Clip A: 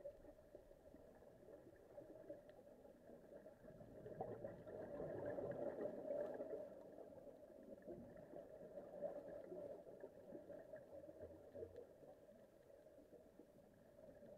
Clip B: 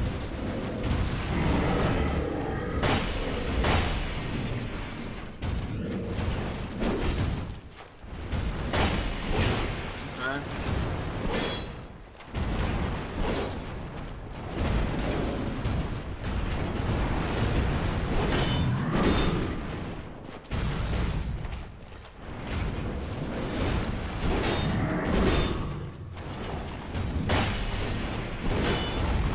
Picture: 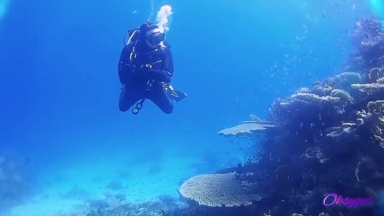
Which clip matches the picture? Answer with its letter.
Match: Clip A